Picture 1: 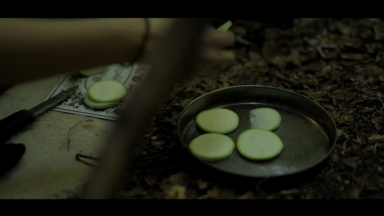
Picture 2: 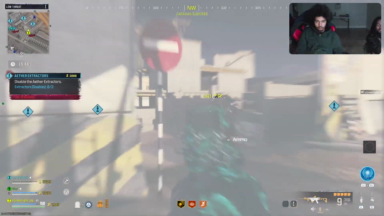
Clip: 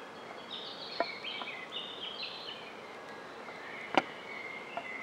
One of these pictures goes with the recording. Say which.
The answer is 1